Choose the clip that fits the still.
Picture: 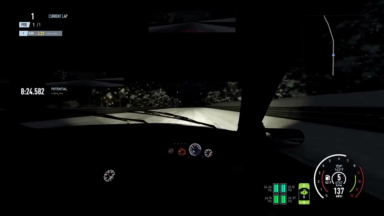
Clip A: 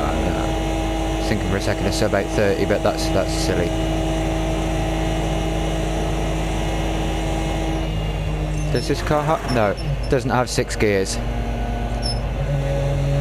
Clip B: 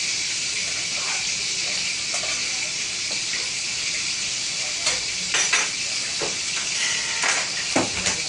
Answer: A